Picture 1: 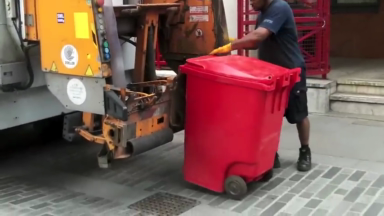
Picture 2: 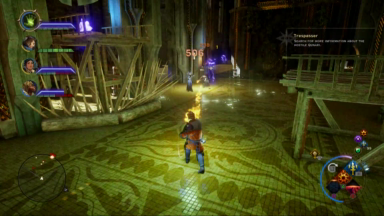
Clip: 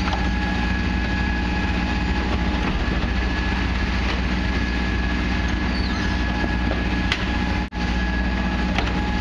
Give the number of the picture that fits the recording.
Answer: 1